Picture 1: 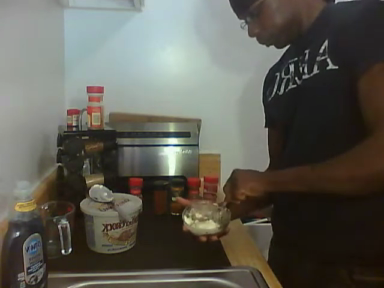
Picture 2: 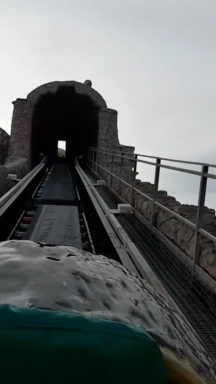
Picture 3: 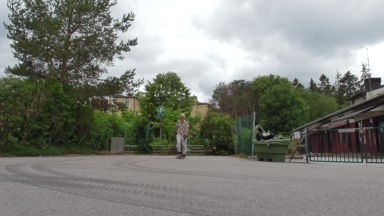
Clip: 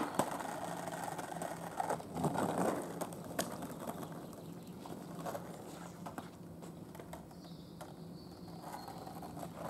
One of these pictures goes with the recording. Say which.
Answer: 3